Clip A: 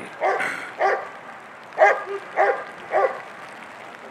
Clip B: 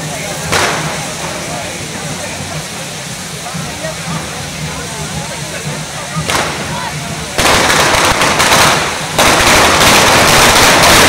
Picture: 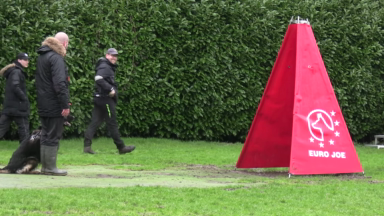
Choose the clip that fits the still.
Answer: A